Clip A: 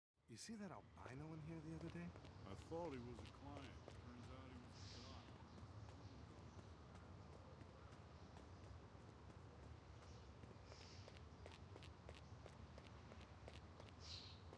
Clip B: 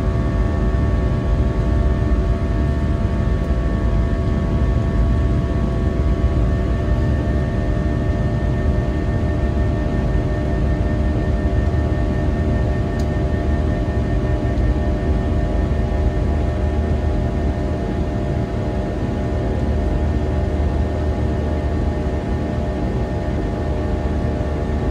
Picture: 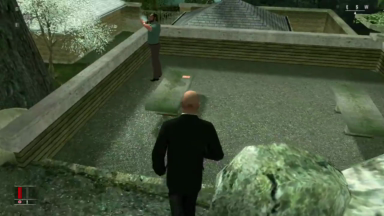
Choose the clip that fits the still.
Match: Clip A